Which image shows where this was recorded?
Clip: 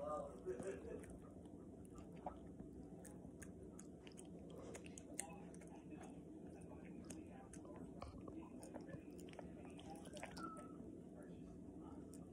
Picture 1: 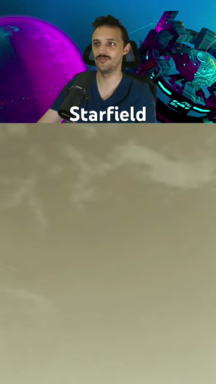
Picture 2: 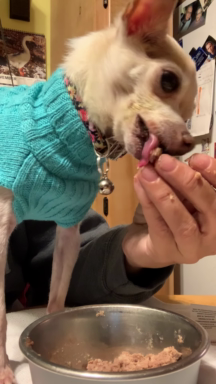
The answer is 2